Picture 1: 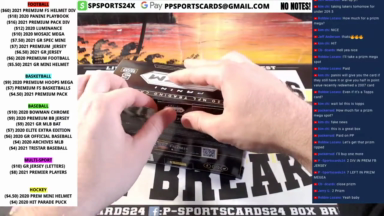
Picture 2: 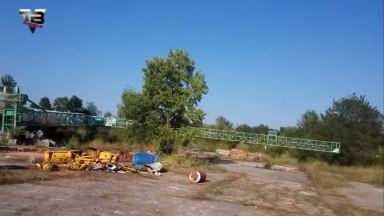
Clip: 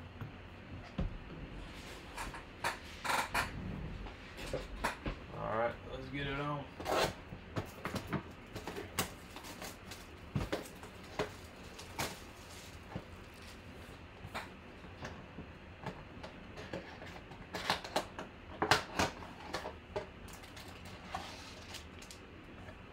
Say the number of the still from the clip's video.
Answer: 1